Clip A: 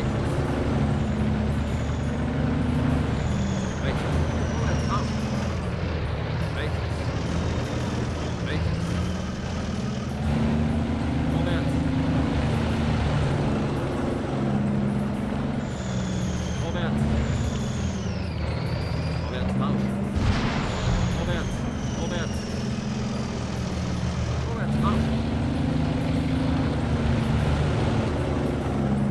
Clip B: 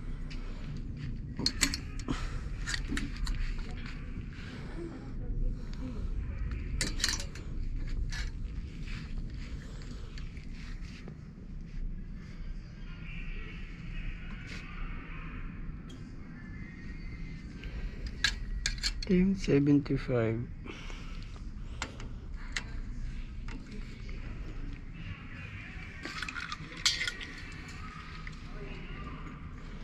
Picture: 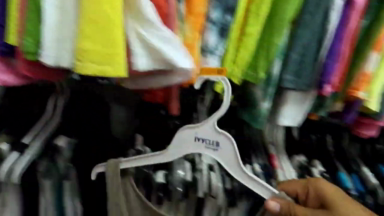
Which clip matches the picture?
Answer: B